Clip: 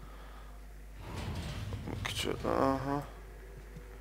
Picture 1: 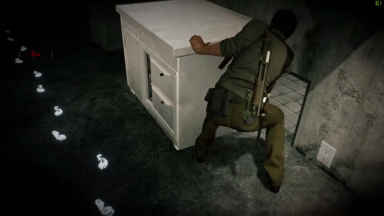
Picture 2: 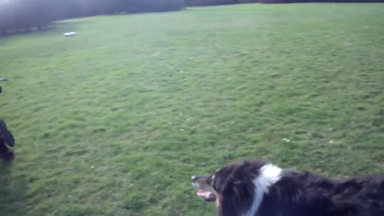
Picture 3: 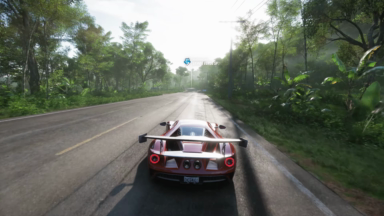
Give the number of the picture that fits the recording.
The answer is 1